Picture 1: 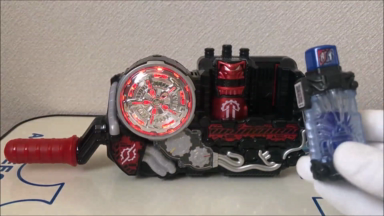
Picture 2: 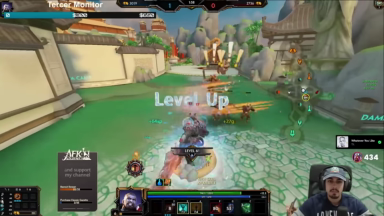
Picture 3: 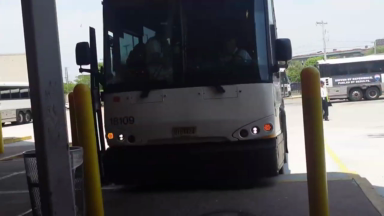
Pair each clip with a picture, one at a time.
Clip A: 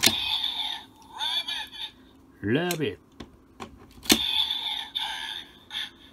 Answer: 1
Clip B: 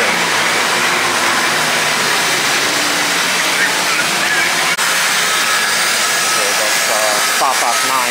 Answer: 3